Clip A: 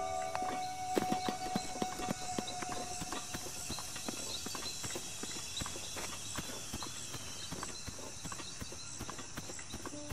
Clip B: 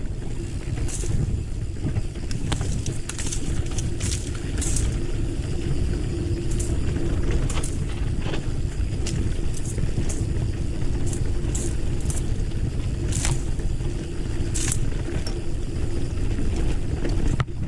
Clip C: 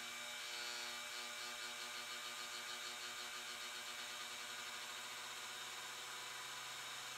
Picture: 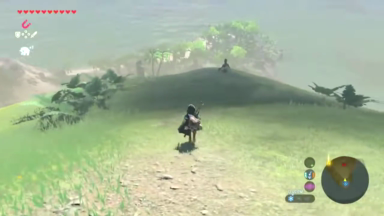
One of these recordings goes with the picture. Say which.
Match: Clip A